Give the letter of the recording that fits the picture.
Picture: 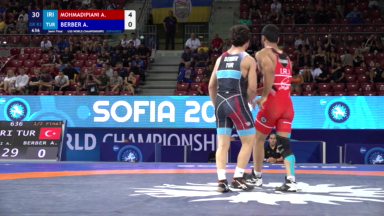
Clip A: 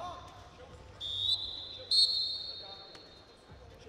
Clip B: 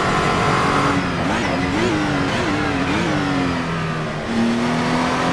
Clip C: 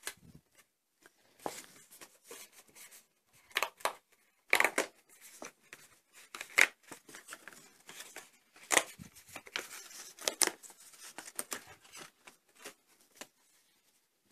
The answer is A